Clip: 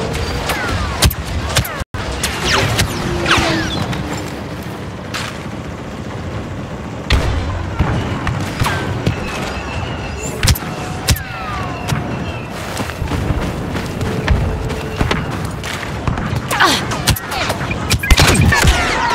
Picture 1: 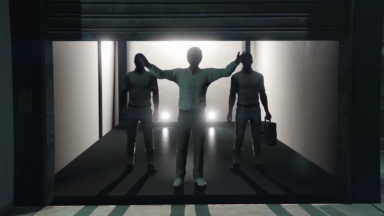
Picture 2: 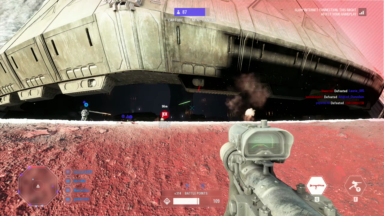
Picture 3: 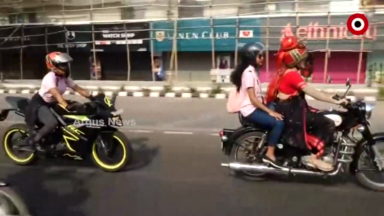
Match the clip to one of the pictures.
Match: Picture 2